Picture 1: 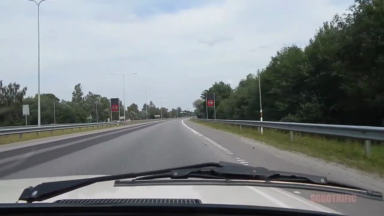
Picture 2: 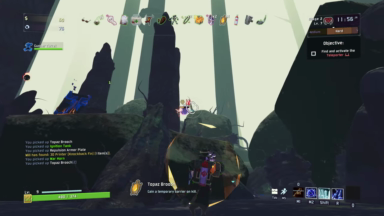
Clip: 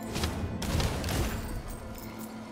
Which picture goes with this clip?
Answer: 2